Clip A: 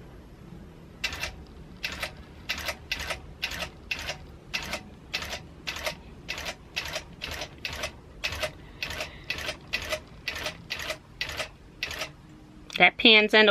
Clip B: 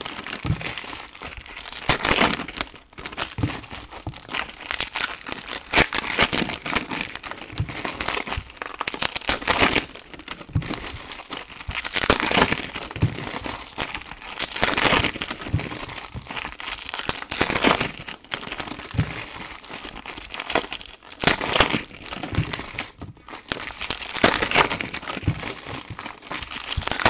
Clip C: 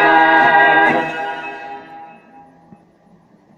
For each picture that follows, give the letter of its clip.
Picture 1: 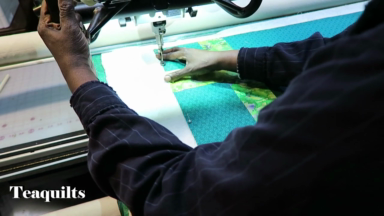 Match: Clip A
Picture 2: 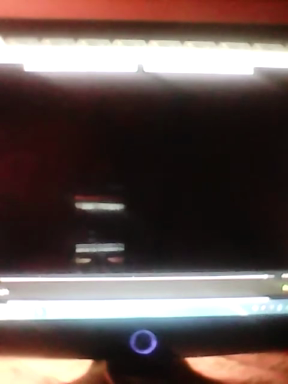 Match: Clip C